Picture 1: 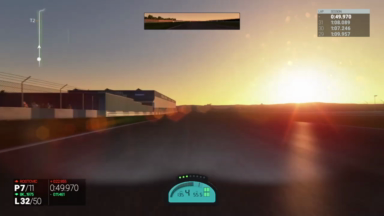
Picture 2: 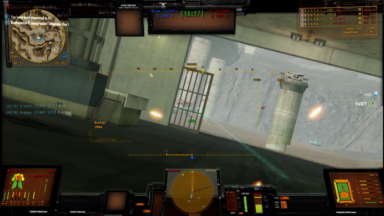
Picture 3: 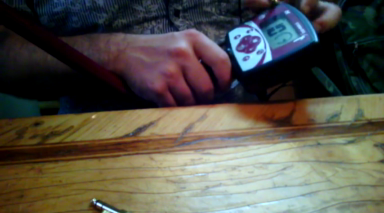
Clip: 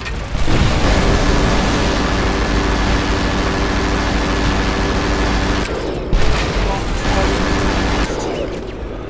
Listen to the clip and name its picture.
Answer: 2